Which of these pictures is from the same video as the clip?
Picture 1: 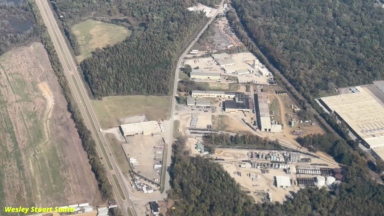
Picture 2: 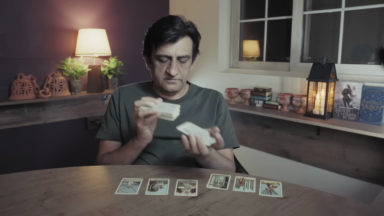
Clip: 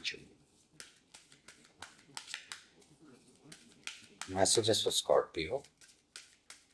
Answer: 2